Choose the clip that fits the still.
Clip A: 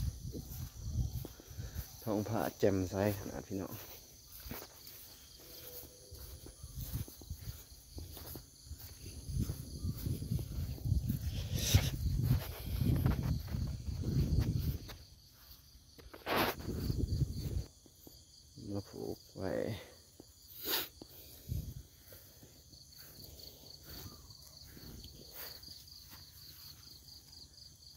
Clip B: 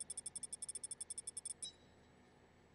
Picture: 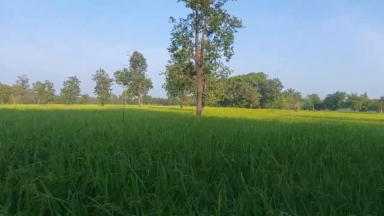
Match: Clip A